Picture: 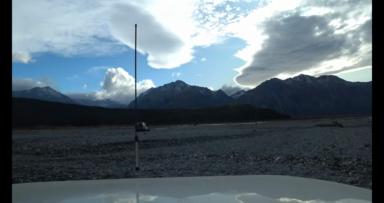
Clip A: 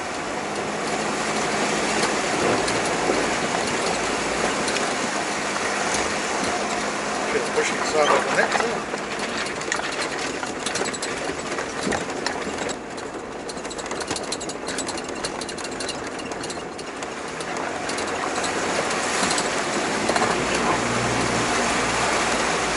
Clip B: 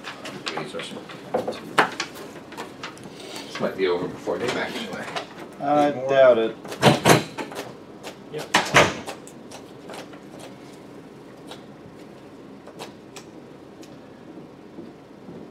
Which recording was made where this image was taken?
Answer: A